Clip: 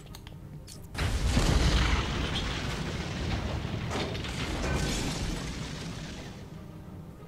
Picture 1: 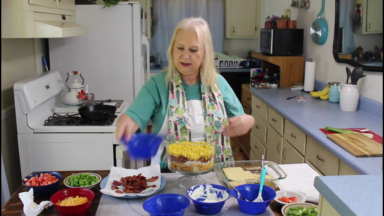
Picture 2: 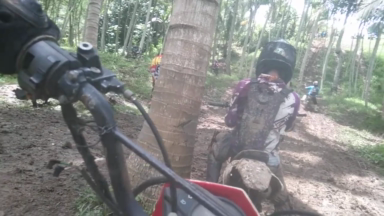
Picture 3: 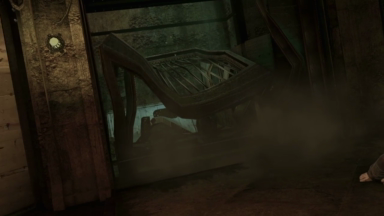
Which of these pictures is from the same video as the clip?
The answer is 3